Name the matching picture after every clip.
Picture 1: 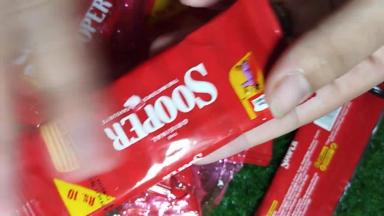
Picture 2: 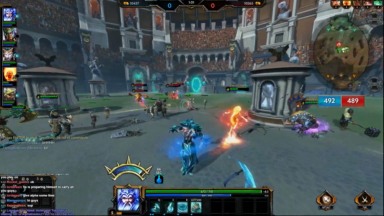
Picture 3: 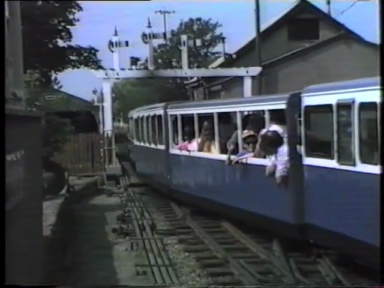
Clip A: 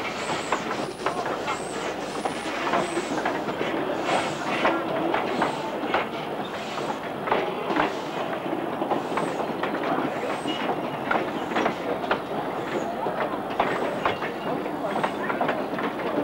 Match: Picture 3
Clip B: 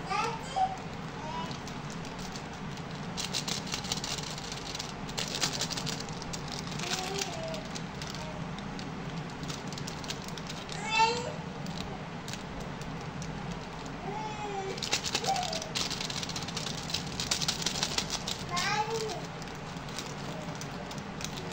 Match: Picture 1